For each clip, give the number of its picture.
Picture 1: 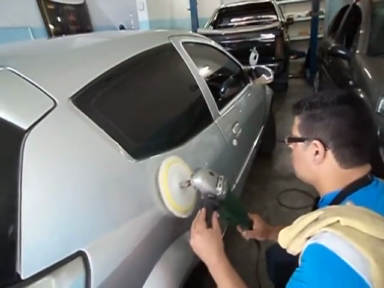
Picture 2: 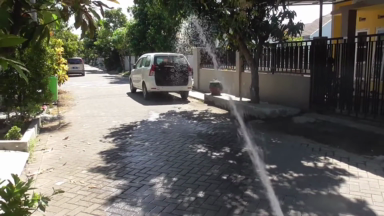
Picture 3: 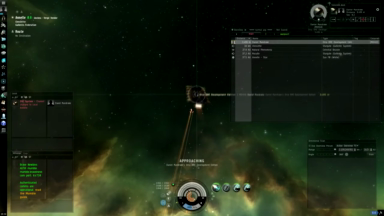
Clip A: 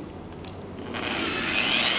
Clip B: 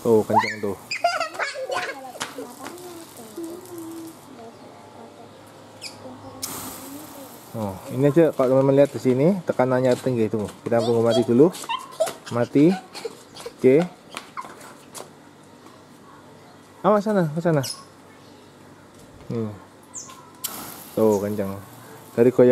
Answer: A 1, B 2